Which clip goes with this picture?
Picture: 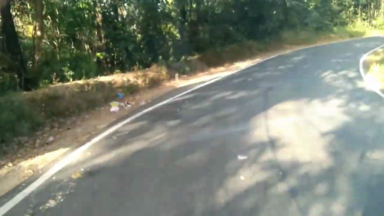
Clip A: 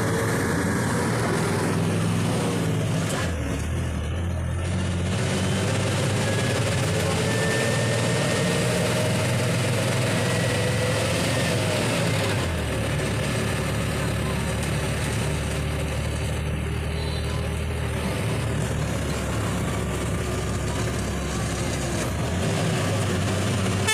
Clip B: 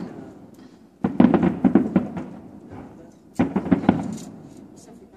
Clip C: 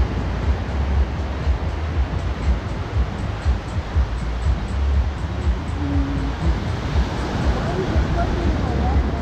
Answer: A